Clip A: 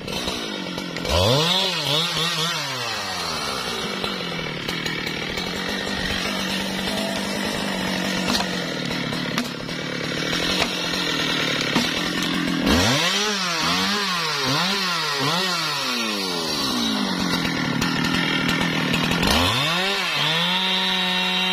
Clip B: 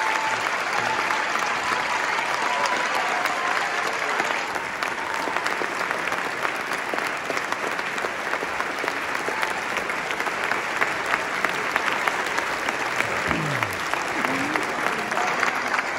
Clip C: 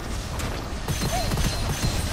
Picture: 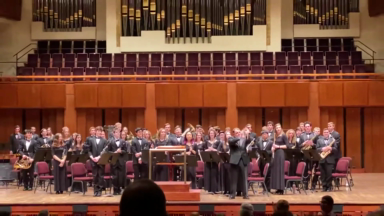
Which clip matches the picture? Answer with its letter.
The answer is B